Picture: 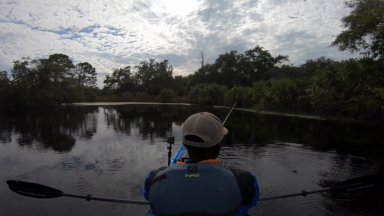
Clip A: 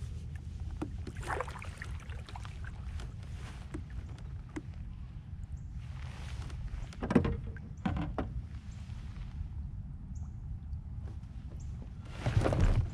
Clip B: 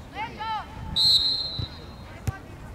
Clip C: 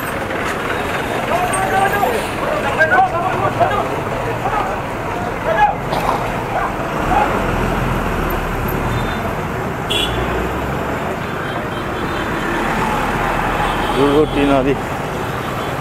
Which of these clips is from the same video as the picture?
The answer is A